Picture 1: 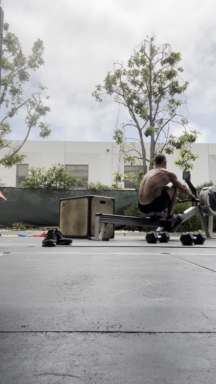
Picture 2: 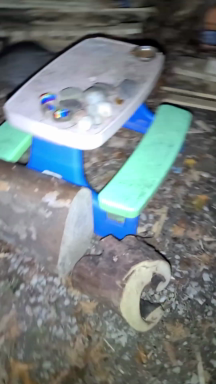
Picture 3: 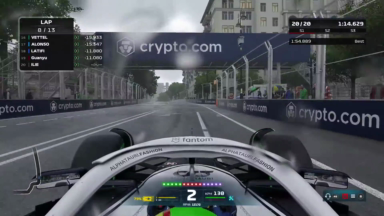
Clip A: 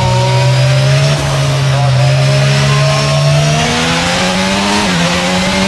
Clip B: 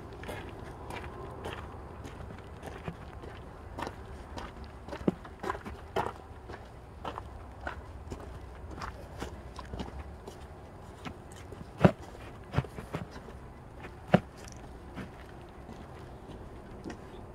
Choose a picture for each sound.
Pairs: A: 3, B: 2